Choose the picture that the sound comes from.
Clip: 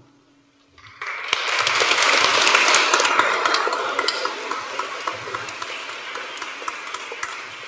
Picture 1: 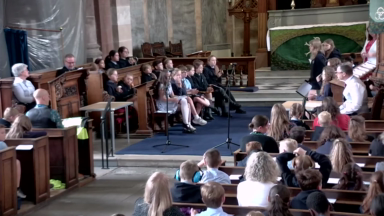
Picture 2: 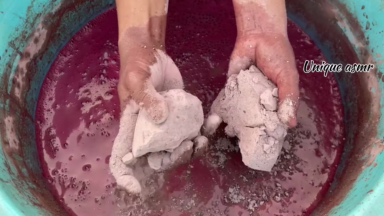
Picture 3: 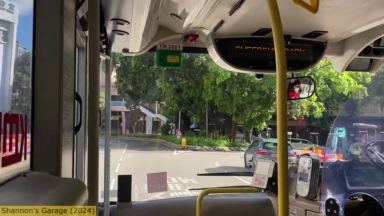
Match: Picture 1